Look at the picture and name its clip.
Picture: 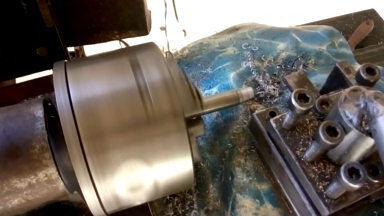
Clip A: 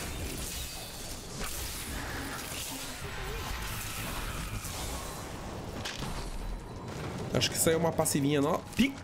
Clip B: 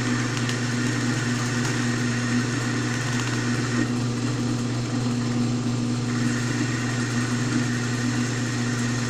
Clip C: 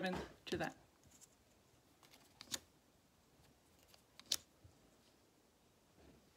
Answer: B